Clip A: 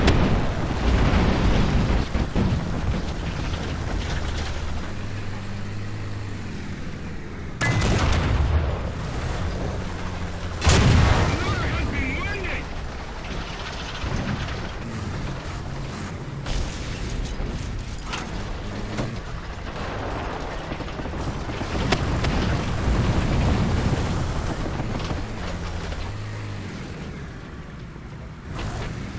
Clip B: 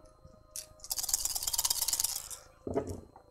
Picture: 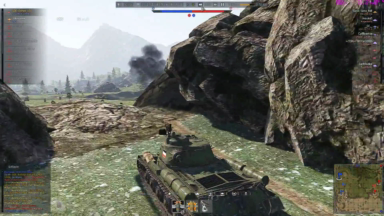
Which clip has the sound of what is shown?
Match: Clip A